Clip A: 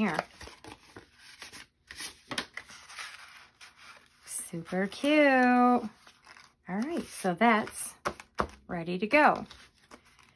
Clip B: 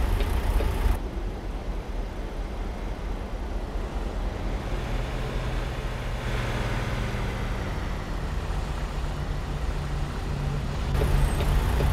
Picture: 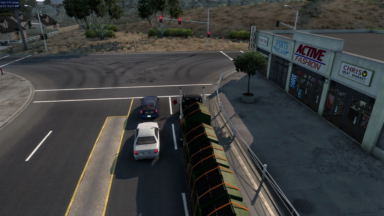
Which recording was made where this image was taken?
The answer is B